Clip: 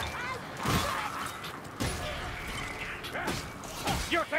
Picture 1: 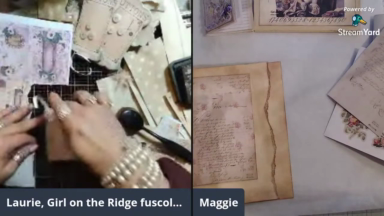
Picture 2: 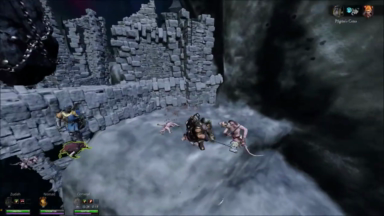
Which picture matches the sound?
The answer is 2